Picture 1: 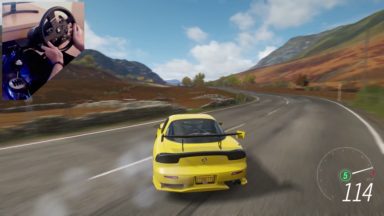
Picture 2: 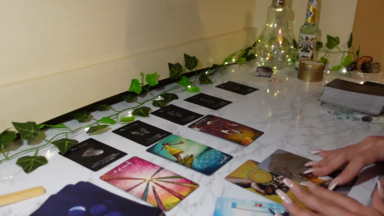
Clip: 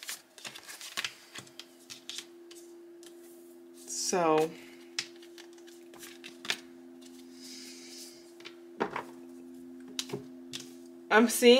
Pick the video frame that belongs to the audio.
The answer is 2